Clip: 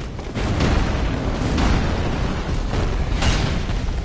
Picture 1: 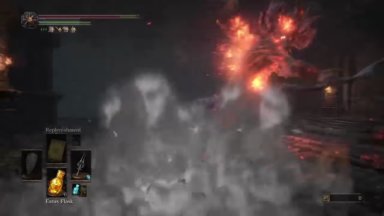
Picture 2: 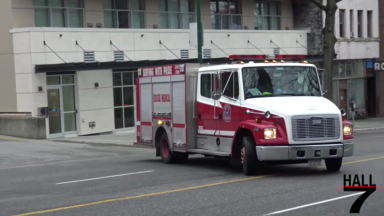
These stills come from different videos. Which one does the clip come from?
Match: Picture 1